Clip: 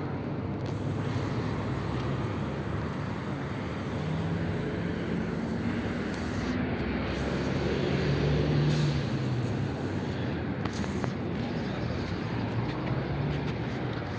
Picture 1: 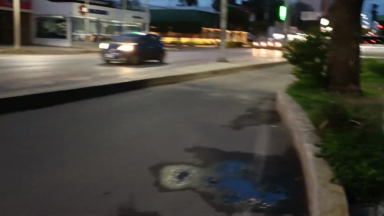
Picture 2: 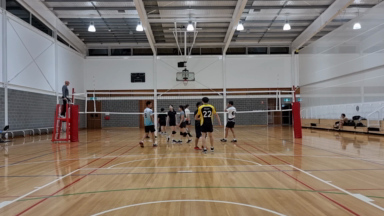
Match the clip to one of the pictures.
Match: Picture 1